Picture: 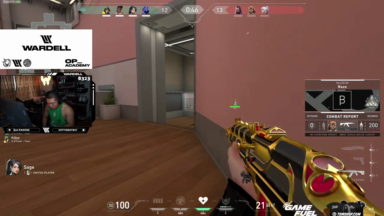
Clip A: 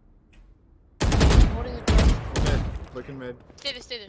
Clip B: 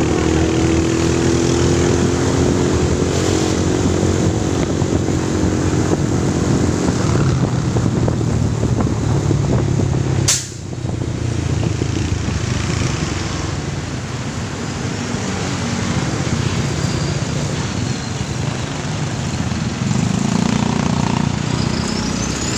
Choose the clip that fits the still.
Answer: A